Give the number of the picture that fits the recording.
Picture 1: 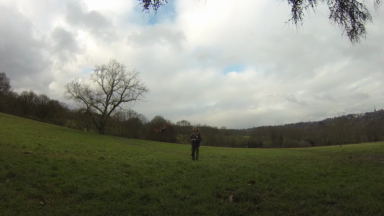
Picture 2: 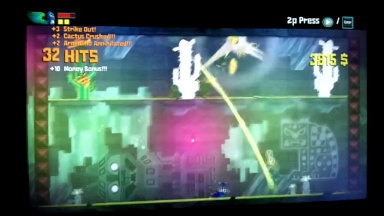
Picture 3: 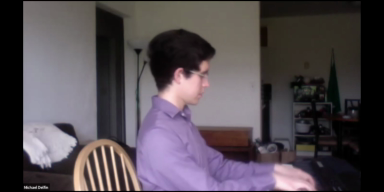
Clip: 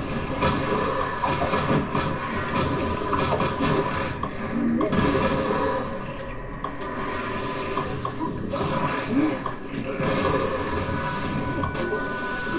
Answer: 2